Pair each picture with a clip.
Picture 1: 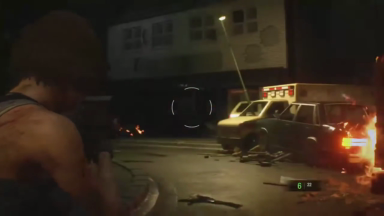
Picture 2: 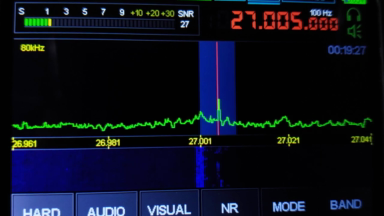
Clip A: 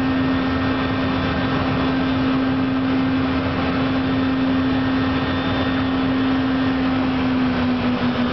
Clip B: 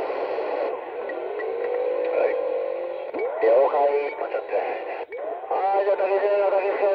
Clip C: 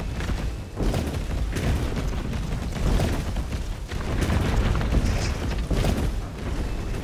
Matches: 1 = C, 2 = B